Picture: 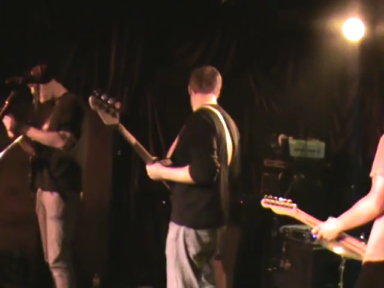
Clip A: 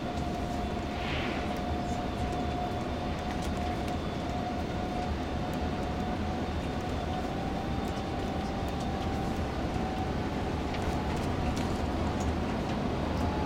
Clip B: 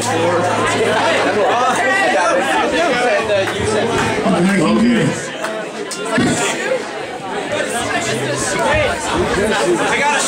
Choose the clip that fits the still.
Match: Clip B